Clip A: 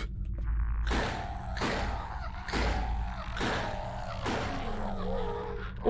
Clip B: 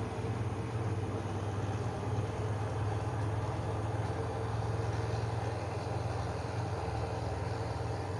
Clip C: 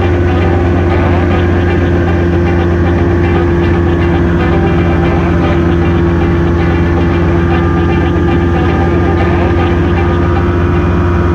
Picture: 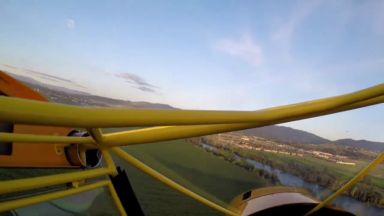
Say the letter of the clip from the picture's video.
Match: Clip C